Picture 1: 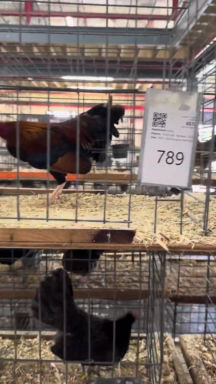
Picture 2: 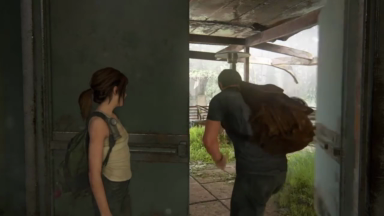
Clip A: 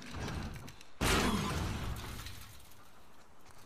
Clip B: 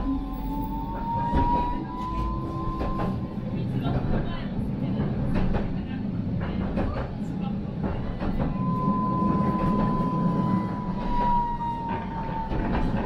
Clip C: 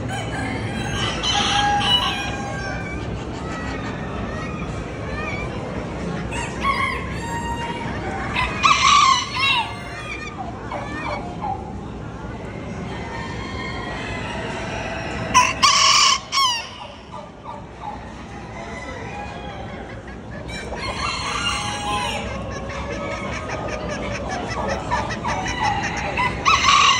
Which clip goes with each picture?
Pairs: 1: C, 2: A